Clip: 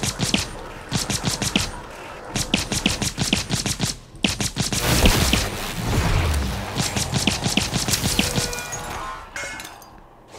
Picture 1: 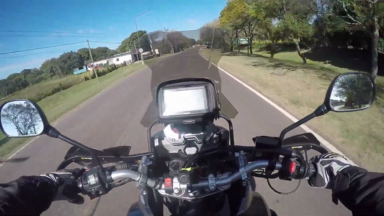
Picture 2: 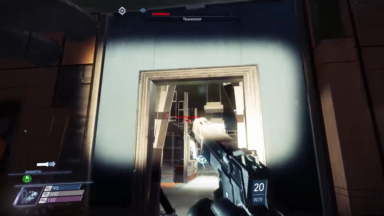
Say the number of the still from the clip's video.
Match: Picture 2